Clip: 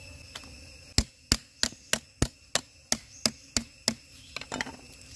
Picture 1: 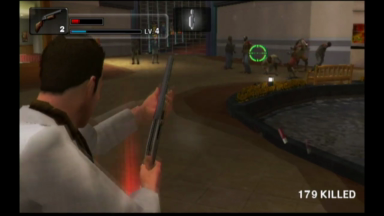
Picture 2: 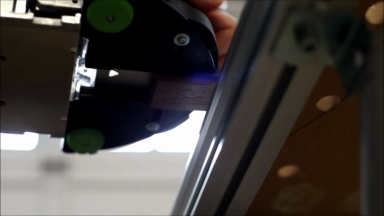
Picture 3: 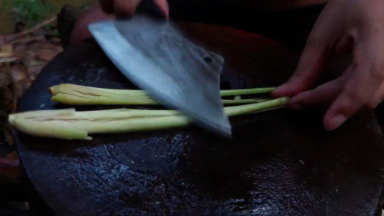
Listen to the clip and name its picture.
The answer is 3